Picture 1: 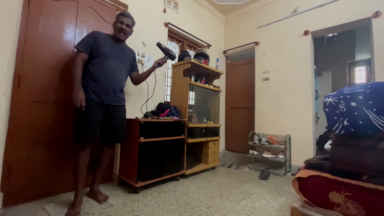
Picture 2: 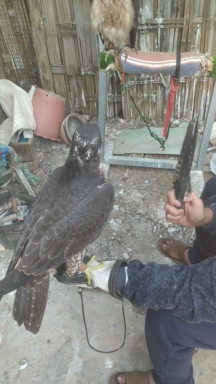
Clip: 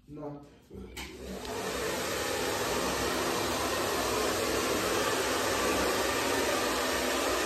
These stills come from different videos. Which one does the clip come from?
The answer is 1